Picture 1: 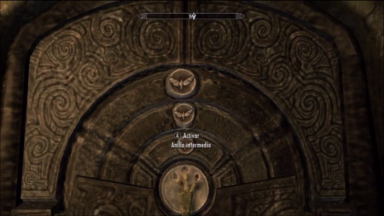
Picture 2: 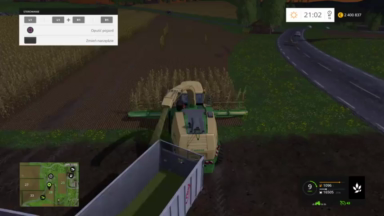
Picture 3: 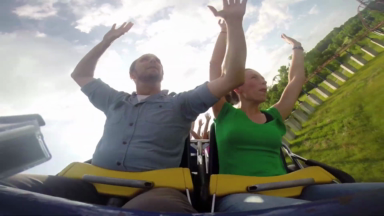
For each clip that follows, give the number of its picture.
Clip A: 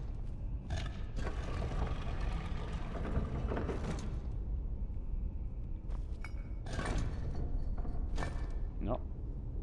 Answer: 1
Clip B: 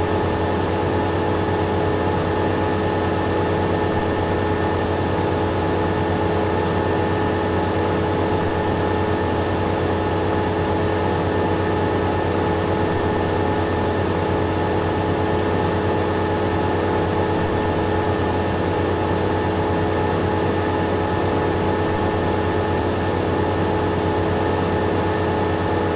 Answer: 2